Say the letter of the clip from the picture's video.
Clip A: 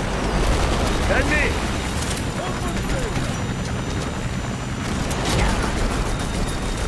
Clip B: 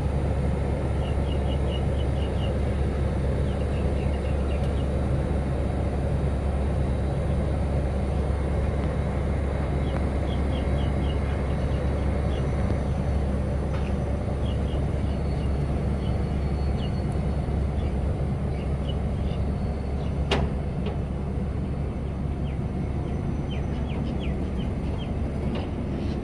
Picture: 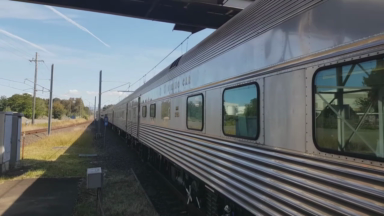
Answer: B